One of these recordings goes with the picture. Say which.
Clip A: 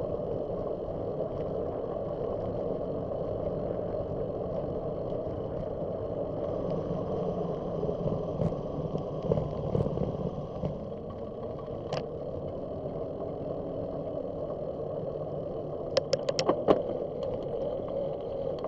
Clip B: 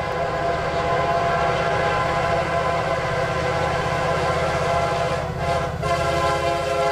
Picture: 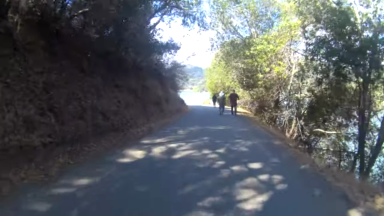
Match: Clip A